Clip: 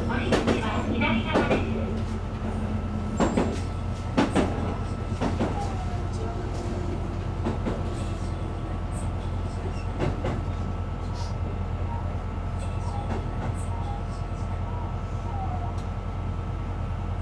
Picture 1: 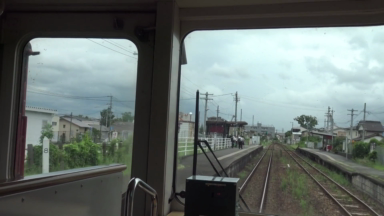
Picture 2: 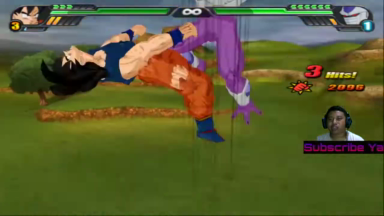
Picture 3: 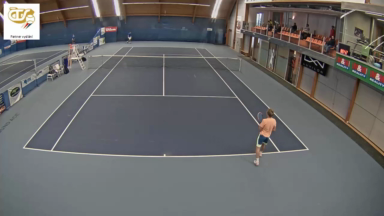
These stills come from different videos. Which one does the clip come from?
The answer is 1